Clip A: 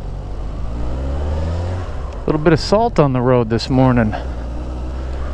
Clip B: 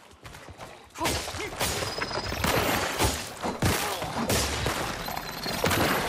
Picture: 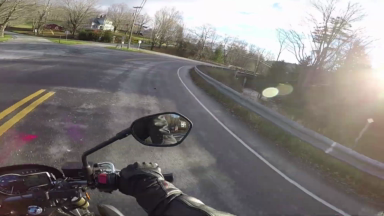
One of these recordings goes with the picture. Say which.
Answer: A